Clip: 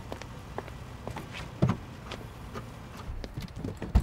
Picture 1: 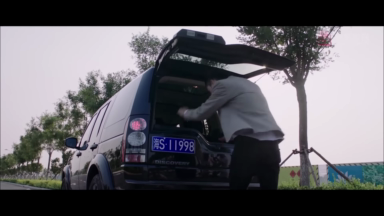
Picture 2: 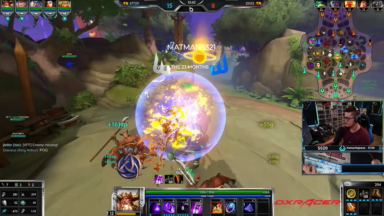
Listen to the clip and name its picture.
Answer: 1